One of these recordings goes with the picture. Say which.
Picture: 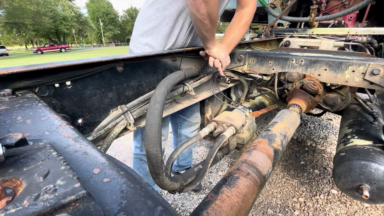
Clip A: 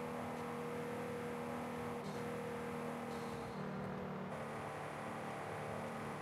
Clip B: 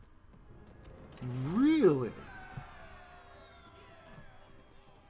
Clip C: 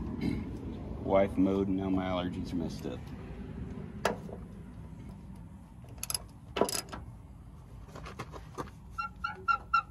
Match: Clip C